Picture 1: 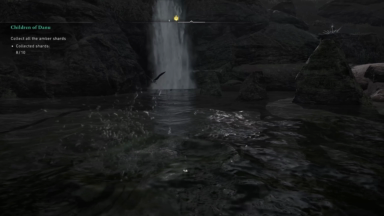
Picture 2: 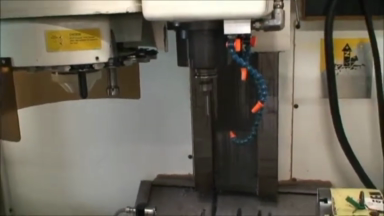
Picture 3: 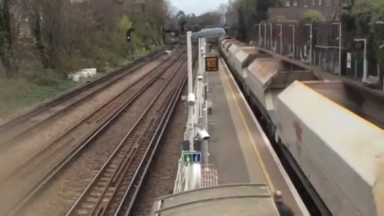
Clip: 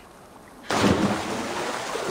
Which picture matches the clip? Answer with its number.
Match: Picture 1